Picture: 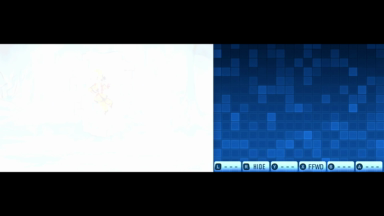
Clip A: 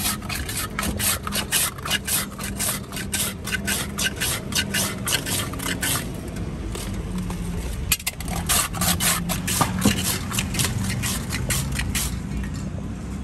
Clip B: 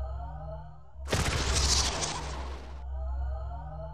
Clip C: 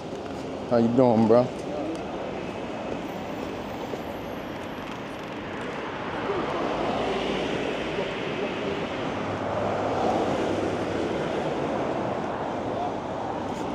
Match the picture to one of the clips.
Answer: B